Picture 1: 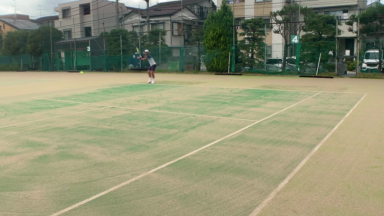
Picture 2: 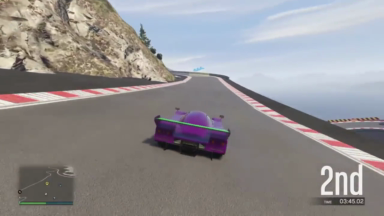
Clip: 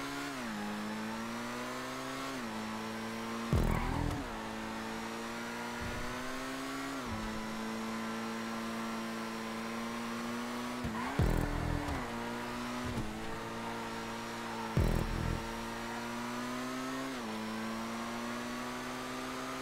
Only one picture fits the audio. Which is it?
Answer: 2